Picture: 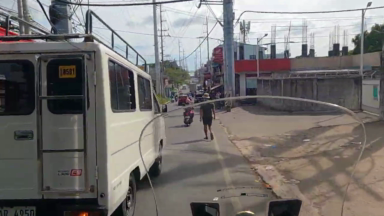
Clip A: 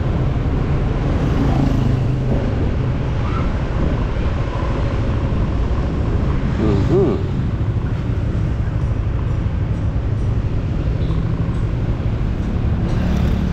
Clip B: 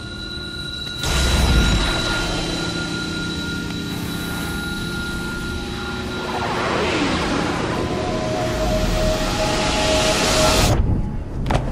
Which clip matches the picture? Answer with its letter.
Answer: A